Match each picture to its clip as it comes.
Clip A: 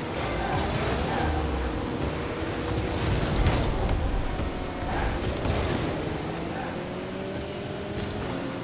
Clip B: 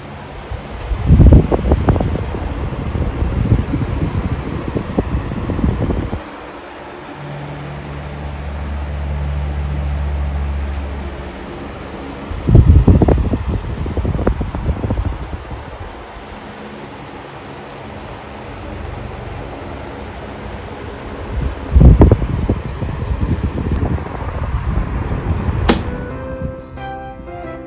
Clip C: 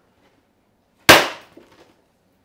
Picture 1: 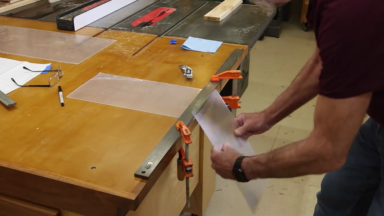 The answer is C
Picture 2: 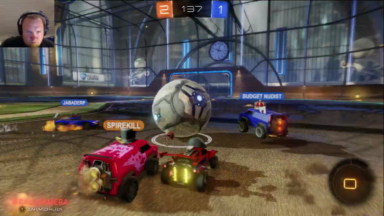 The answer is A